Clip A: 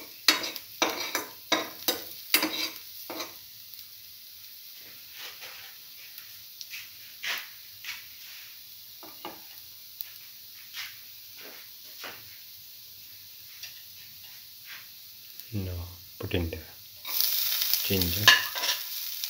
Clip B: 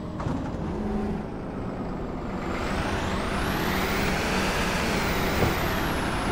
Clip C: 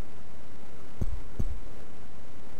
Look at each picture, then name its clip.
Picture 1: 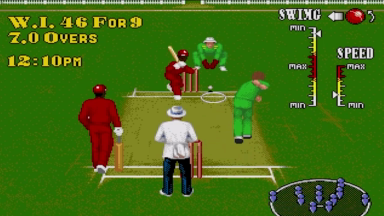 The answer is C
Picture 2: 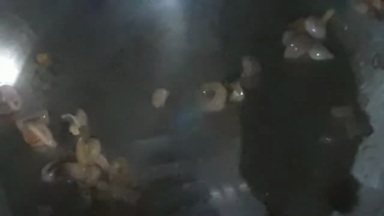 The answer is A